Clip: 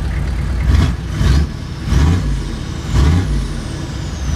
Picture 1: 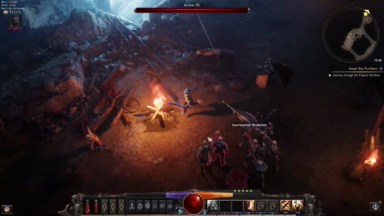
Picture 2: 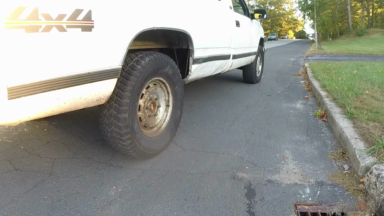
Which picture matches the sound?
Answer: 2